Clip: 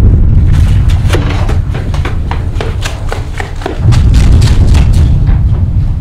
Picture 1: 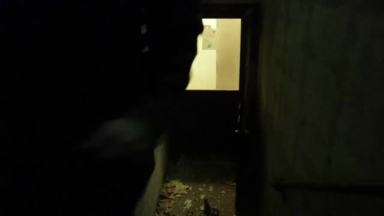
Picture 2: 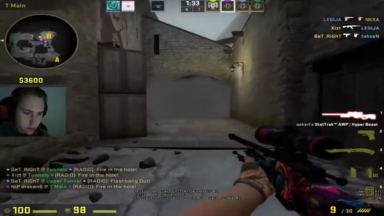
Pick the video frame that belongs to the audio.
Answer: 1